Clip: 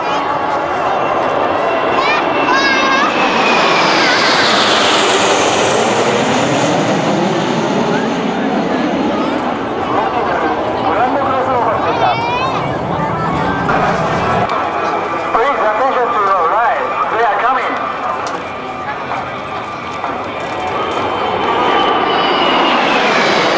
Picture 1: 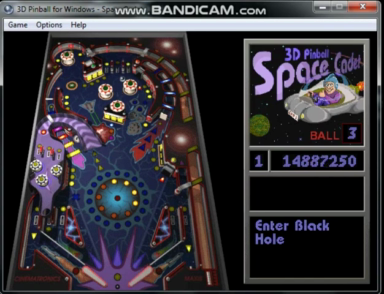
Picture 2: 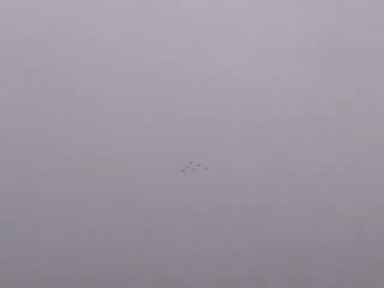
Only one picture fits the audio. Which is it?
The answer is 2